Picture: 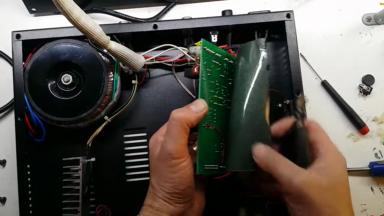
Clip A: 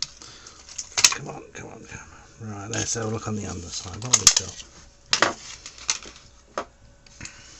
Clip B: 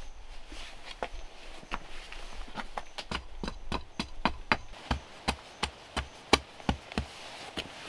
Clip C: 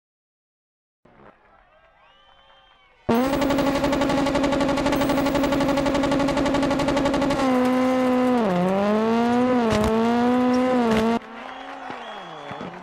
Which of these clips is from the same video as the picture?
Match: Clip A